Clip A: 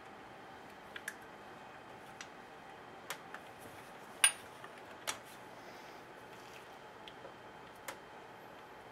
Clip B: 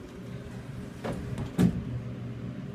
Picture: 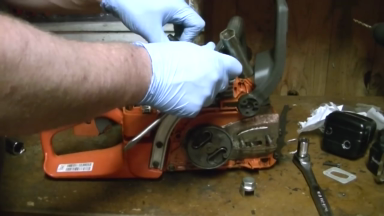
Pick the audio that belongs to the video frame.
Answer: A